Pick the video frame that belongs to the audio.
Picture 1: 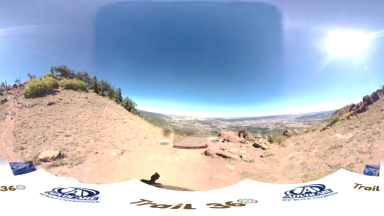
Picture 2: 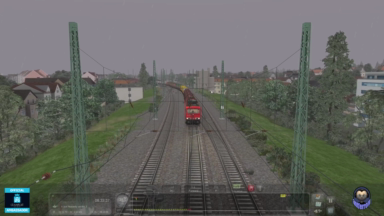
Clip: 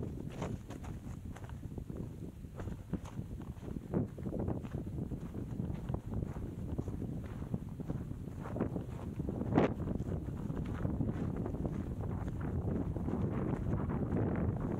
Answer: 1